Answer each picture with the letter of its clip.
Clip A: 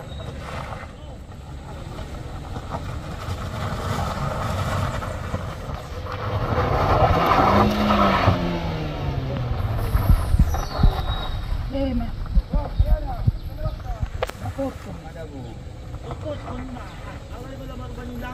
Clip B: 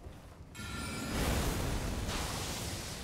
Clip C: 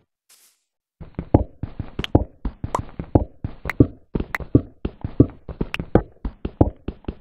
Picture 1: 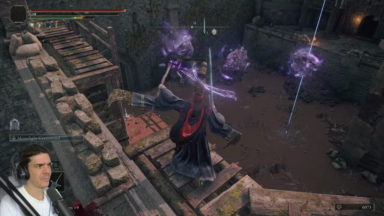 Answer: B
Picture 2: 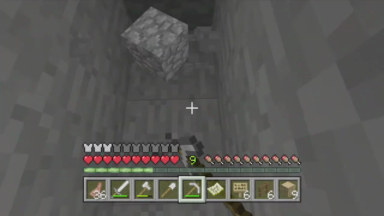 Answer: C